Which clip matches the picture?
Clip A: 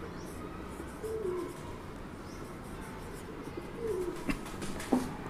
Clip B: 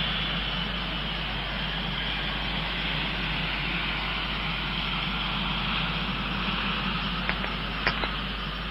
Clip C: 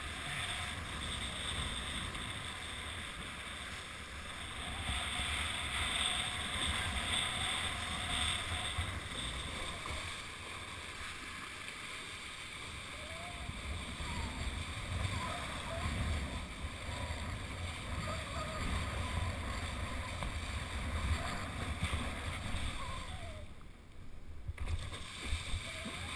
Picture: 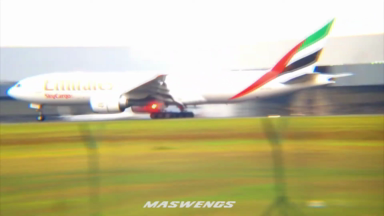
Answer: B